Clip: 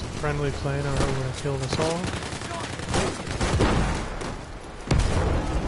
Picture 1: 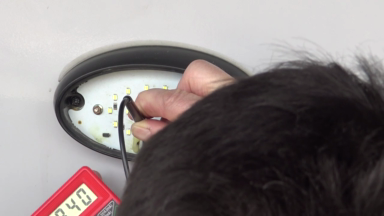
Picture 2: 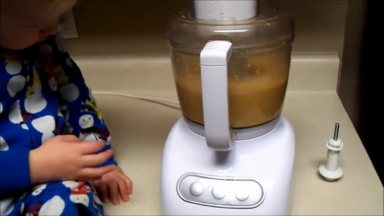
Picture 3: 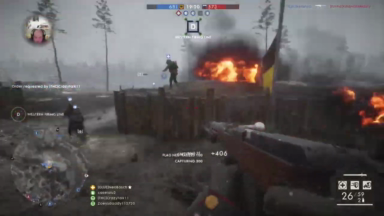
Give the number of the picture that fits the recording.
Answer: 3